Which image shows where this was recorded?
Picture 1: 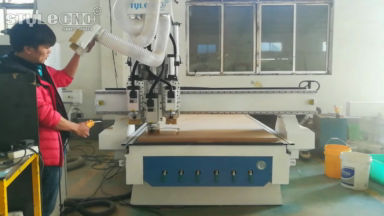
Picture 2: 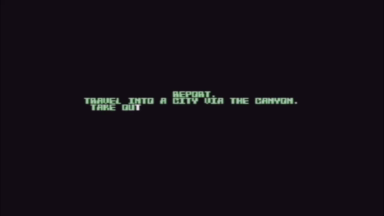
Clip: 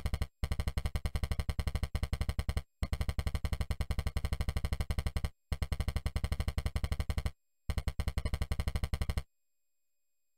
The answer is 2